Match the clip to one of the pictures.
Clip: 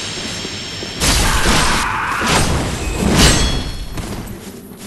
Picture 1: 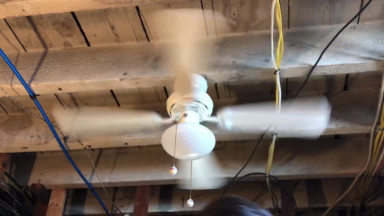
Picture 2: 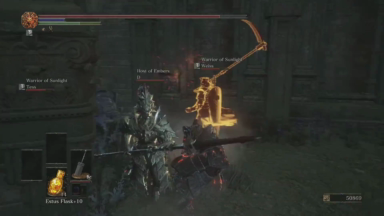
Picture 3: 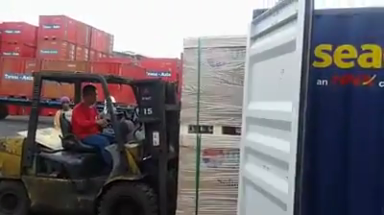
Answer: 2